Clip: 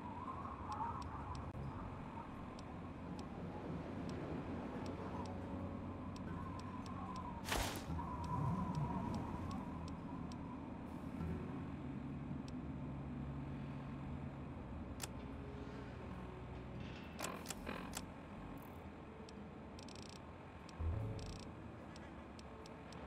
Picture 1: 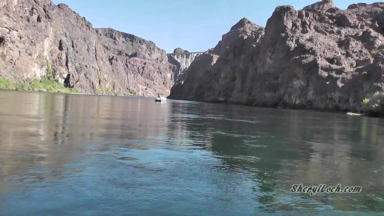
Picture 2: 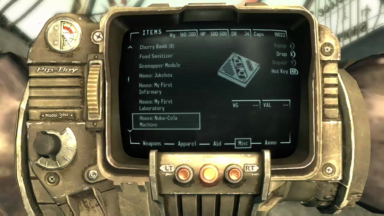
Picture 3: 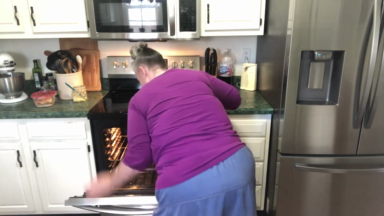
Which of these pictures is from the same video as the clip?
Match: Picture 2